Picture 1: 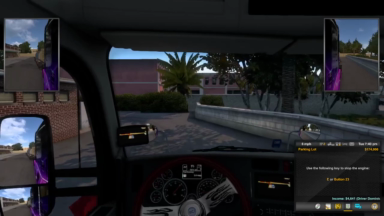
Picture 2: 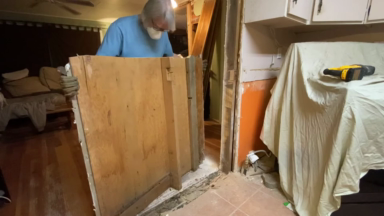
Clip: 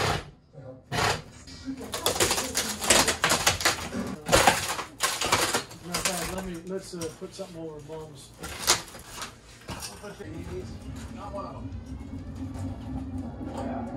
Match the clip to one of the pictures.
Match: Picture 2